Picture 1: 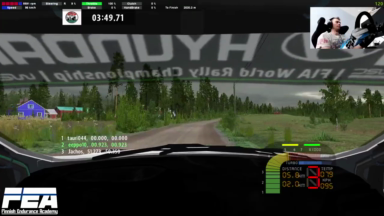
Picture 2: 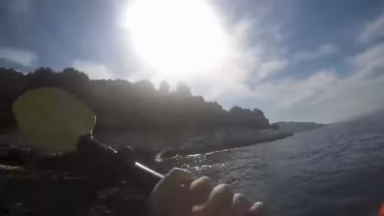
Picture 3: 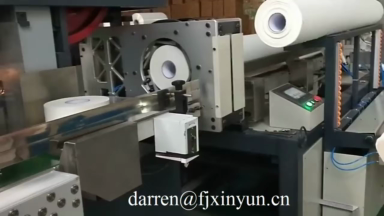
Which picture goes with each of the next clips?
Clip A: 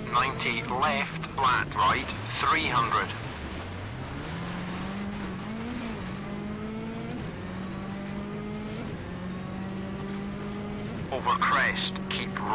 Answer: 1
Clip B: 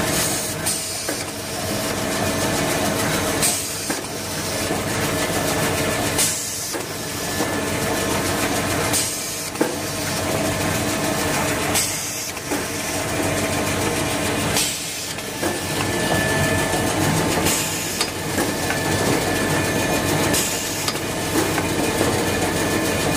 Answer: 3